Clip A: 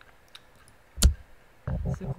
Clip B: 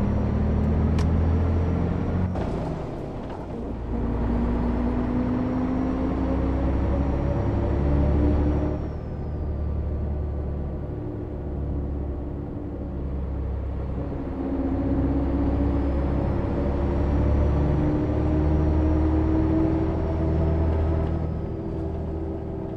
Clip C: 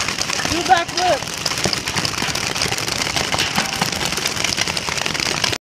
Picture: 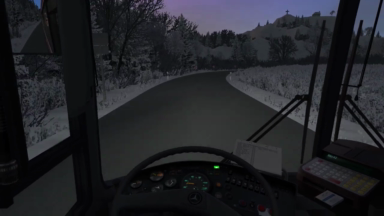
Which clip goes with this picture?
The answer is B